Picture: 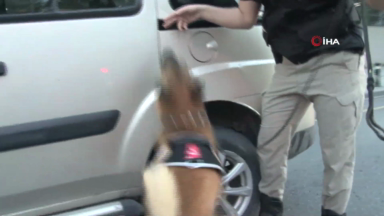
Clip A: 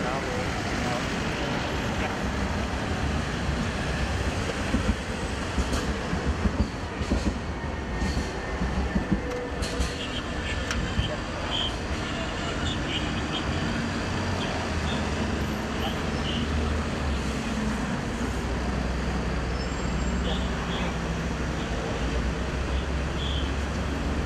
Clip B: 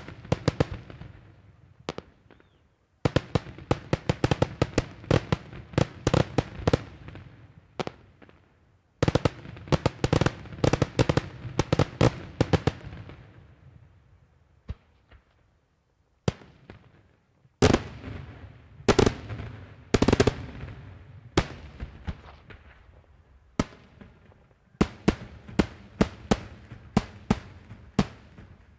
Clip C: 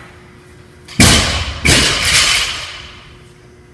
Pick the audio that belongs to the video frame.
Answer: A